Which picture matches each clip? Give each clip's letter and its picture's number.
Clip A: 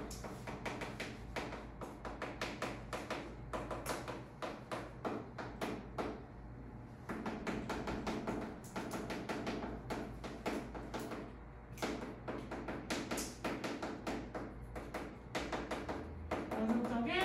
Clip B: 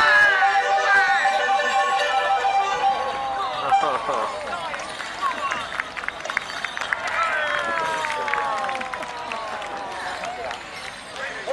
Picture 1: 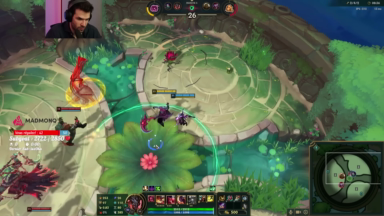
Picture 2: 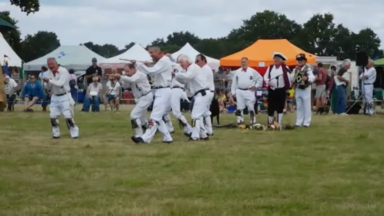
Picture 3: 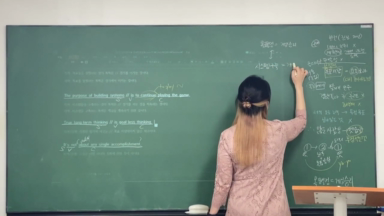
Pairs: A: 3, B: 2